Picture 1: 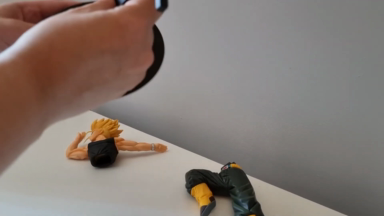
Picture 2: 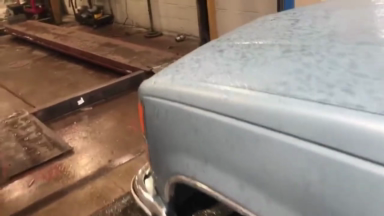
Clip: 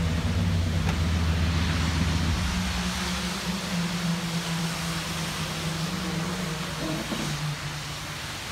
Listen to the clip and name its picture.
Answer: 2